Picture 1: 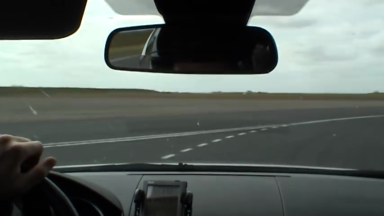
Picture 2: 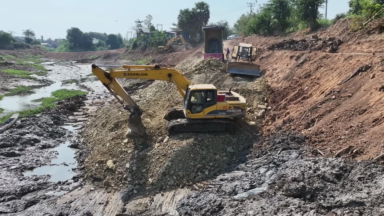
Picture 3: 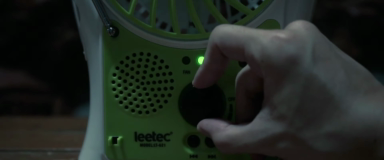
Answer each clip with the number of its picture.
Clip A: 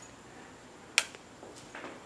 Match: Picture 3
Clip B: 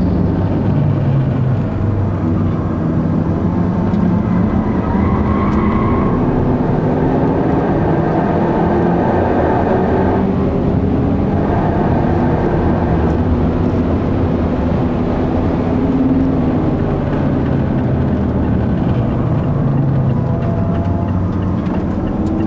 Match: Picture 1